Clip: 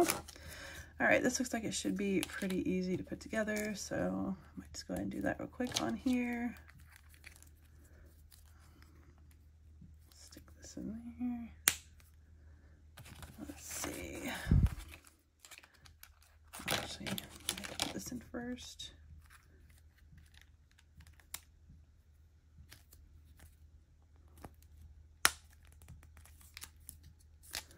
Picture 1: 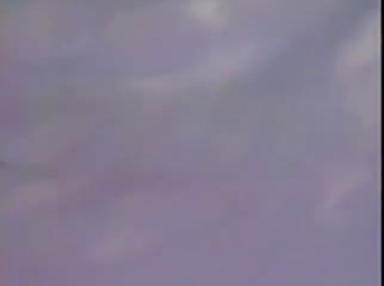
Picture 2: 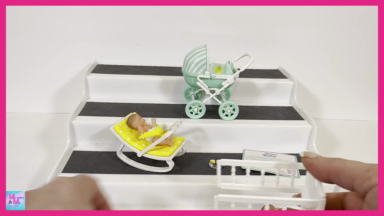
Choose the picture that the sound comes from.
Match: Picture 2